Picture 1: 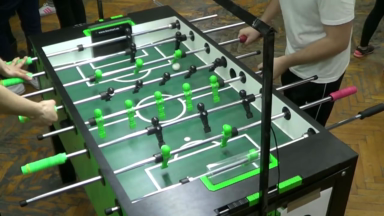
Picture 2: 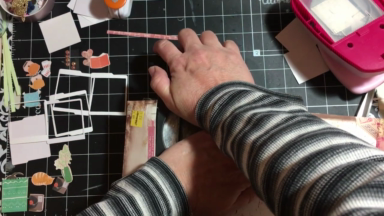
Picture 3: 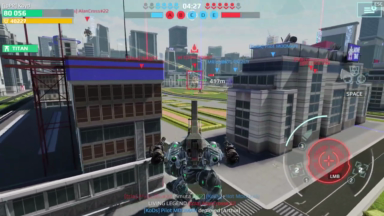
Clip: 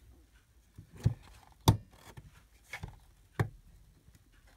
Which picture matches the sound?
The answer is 2